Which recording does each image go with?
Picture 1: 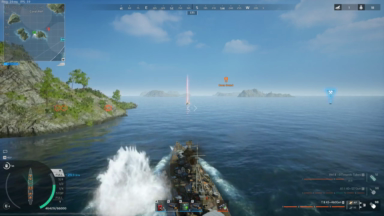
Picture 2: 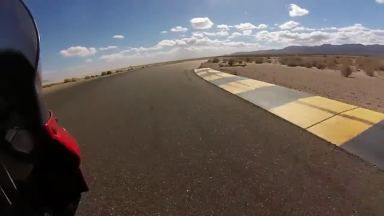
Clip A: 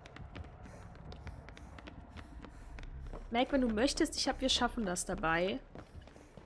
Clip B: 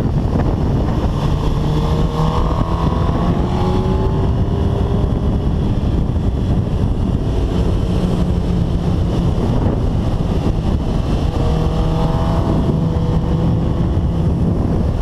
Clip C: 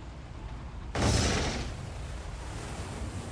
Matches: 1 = C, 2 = B